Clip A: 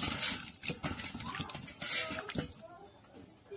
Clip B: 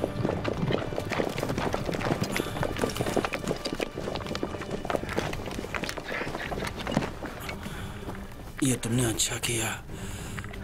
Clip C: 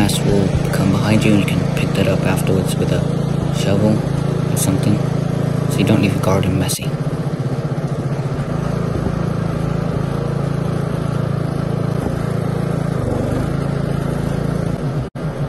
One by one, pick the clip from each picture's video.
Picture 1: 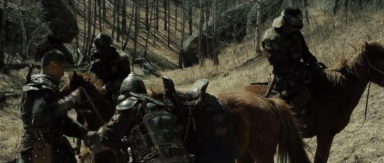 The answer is B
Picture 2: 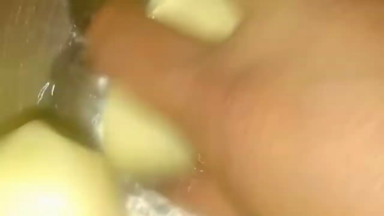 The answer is A